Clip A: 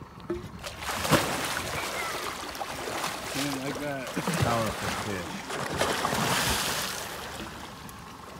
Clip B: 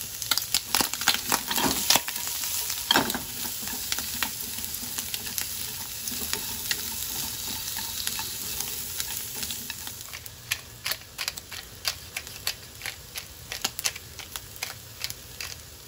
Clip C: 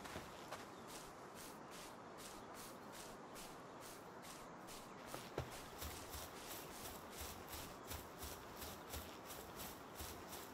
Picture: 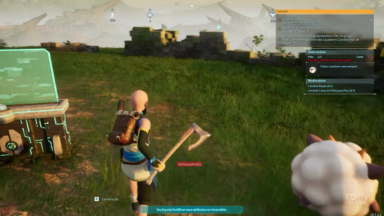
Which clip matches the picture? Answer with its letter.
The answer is C